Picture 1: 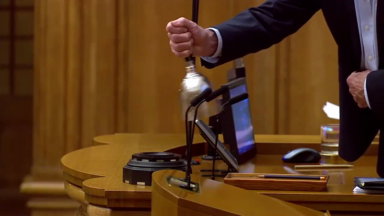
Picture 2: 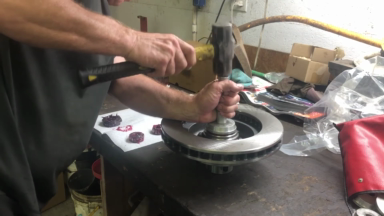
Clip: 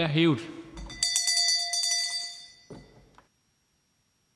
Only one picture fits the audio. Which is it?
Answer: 1